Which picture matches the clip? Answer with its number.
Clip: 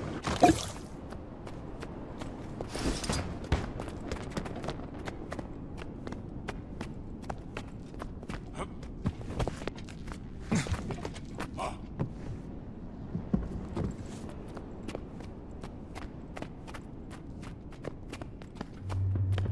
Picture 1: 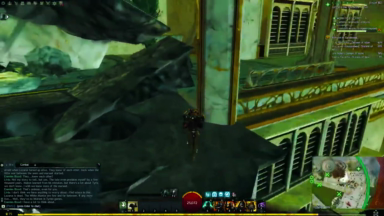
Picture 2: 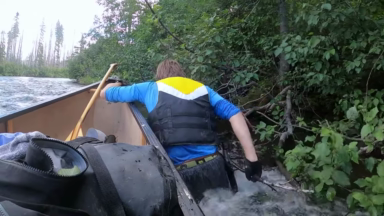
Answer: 1